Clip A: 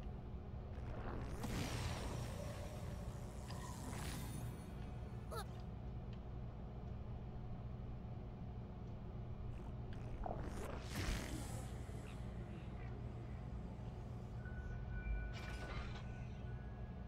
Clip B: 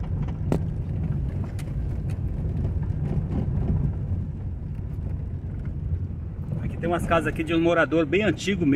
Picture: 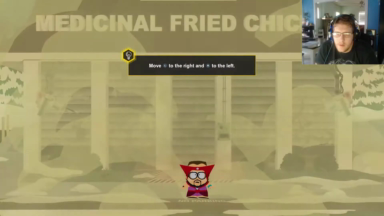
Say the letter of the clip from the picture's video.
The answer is A